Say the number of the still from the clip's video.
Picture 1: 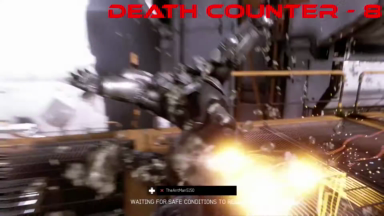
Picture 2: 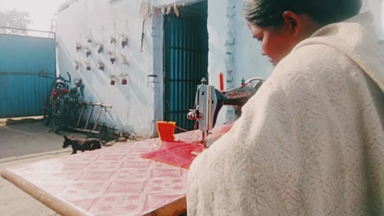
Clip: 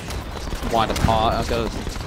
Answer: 1